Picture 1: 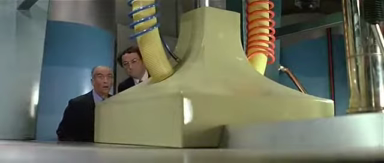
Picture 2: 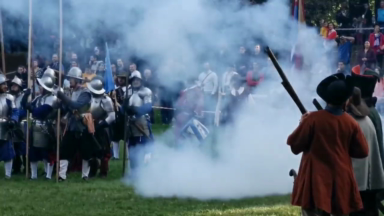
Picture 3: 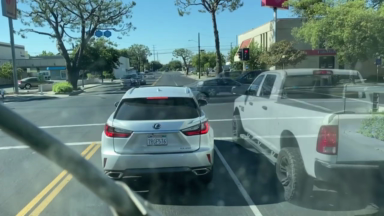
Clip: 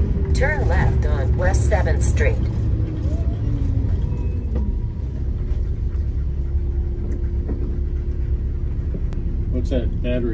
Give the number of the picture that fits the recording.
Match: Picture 3